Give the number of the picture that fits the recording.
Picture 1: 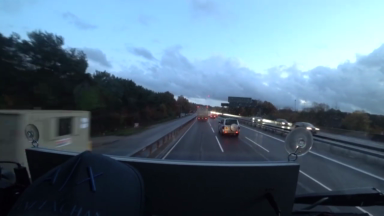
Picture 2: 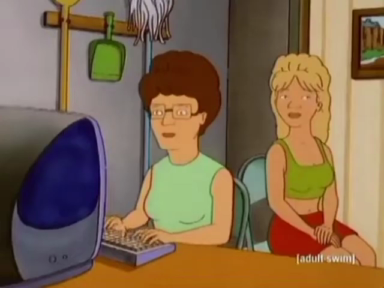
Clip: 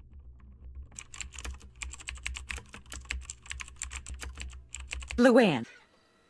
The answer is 2